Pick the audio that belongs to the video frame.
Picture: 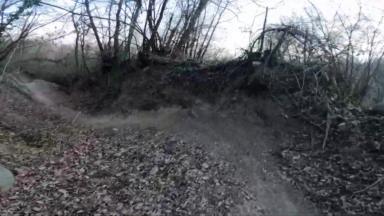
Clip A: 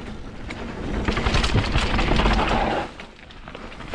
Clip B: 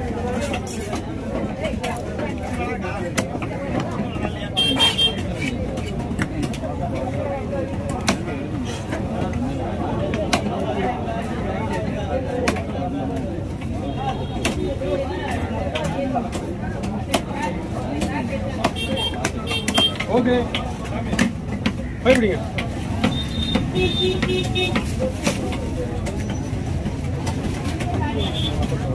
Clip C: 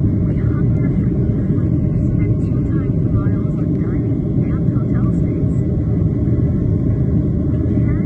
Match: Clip A